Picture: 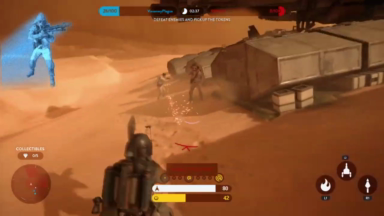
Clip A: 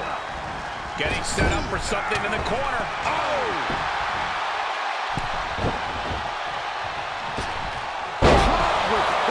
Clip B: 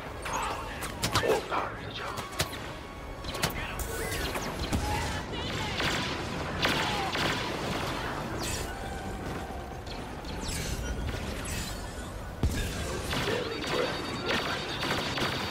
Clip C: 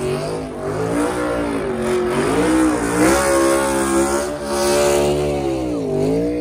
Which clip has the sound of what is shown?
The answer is B